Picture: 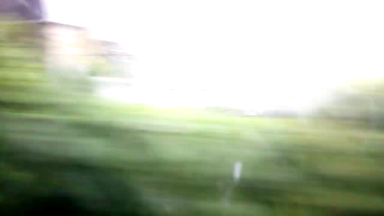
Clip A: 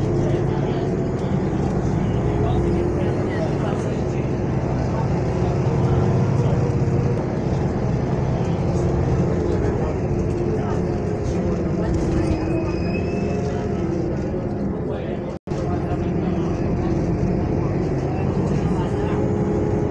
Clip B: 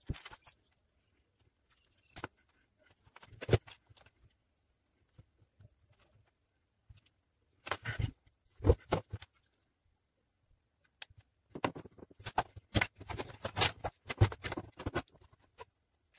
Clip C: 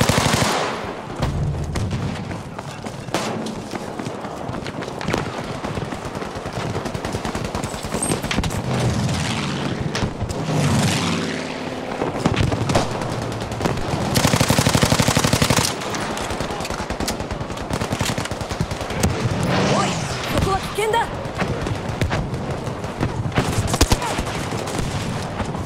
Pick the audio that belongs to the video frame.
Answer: A